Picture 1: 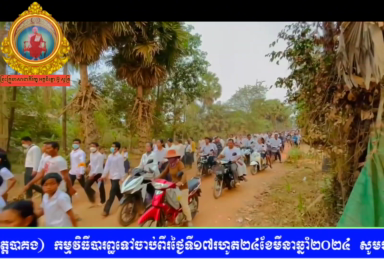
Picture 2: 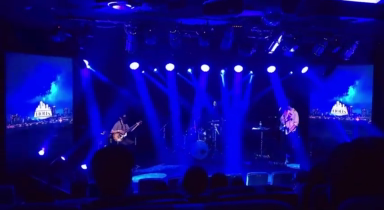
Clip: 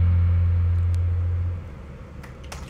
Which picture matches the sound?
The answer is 2